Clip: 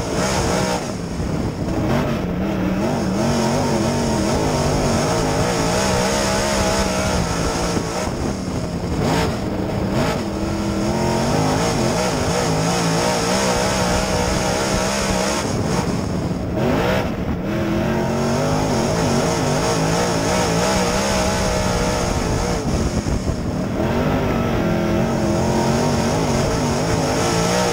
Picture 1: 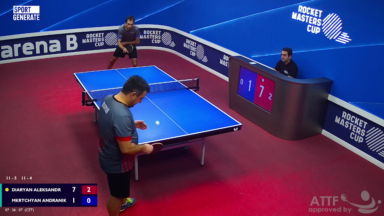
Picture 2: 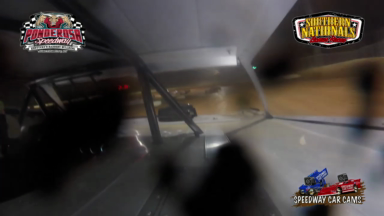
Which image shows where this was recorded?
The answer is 2